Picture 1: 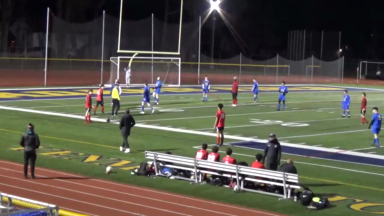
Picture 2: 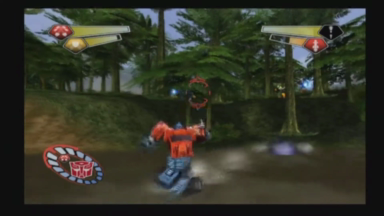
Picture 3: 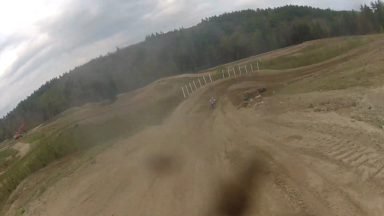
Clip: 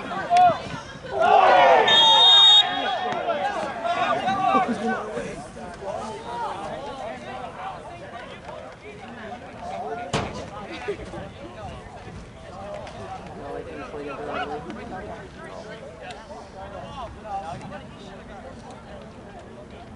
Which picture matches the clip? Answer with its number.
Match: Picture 1